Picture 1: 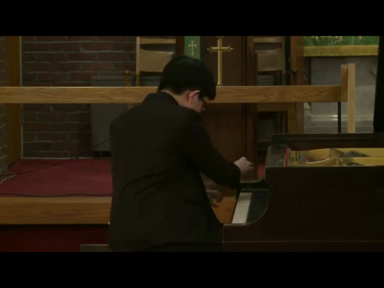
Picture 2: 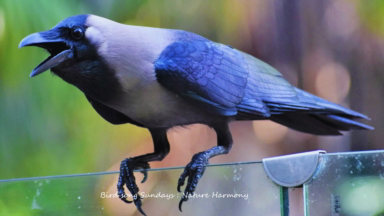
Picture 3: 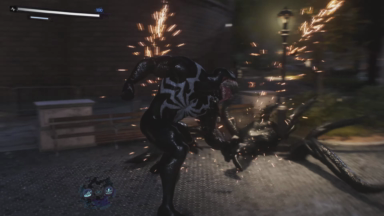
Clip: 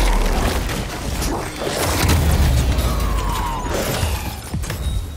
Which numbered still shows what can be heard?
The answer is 3